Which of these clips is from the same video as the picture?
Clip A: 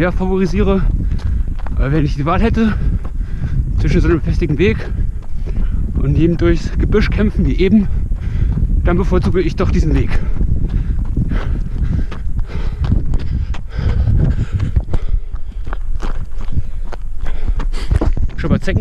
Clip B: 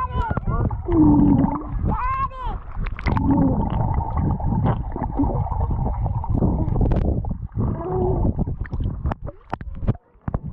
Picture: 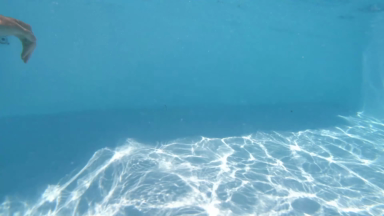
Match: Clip B